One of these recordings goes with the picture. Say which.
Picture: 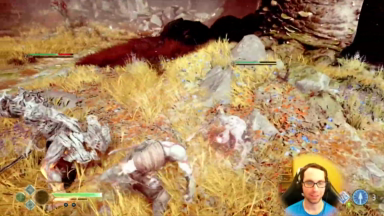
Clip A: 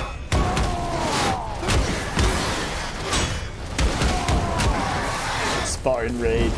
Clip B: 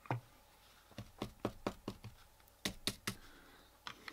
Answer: A